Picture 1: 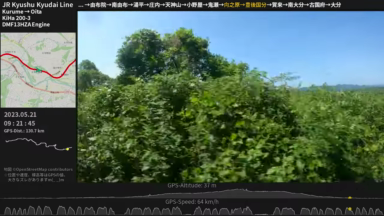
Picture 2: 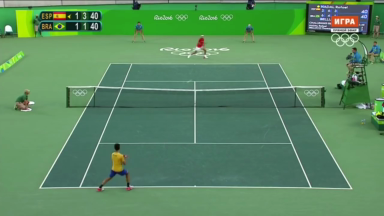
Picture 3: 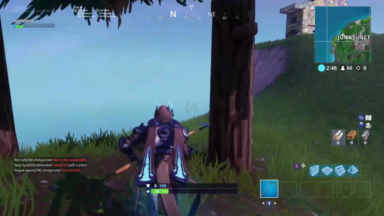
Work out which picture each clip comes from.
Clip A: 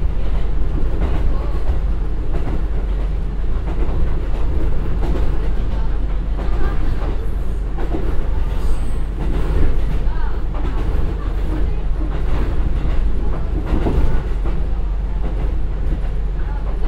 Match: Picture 1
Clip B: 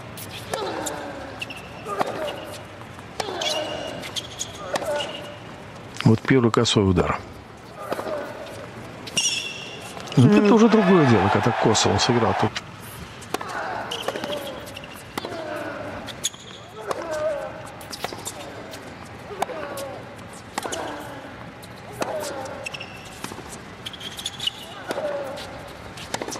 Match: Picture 2